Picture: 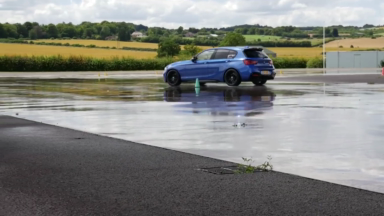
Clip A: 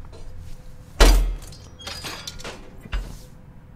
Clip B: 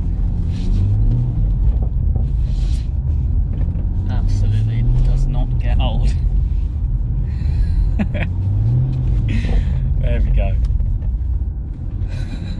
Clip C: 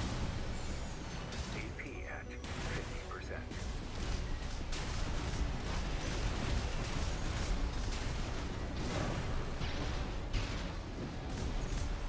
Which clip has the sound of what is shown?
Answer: B